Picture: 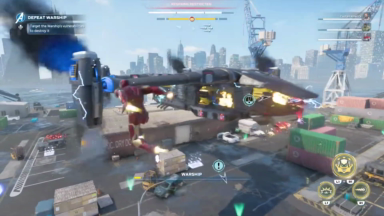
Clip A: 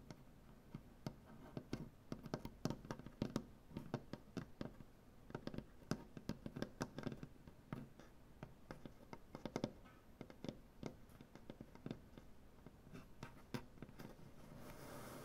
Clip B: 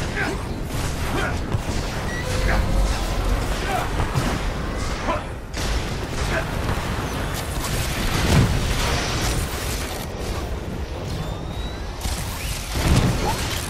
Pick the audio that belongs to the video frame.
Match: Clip B